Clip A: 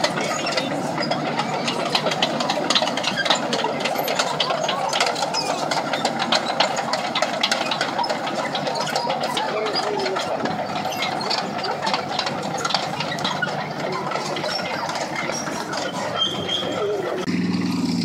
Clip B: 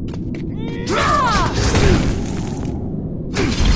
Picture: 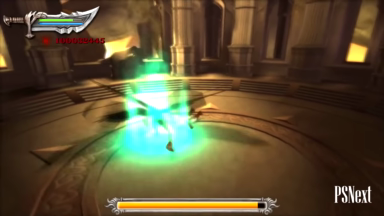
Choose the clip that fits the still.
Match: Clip B